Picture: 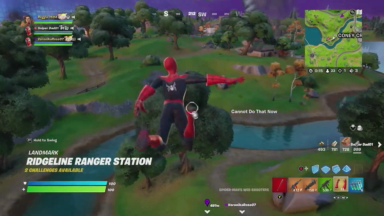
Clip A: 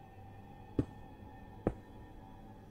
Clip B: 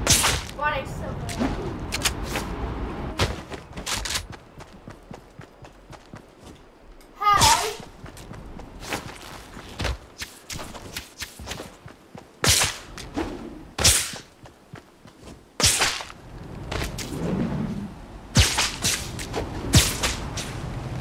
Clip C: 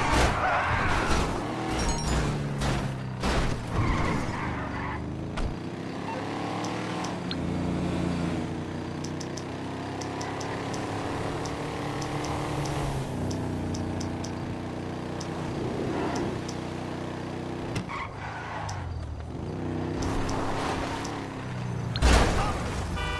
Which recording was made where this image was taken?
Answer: B